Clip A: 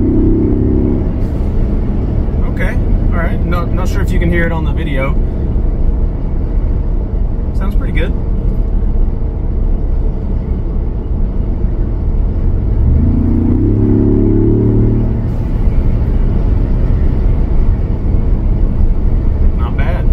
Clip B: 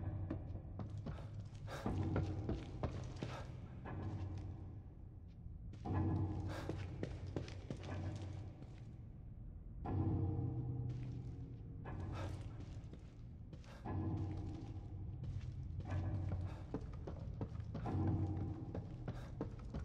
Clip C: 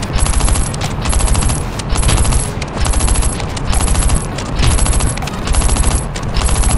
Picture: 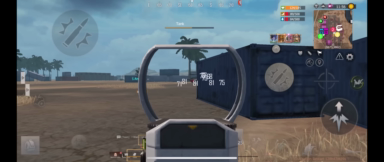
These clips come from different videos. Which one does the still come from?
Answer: C